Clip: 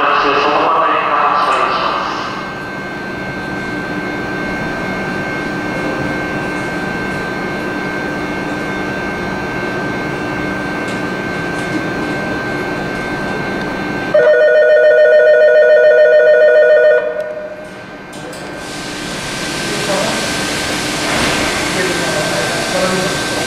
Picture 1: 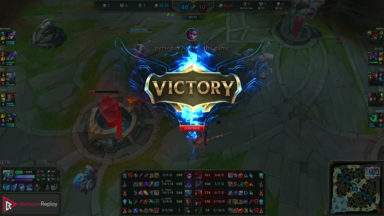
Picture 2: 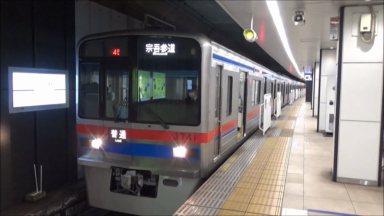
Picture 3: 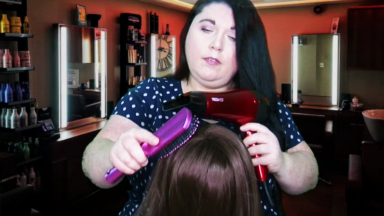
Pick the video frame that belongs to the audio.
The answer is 2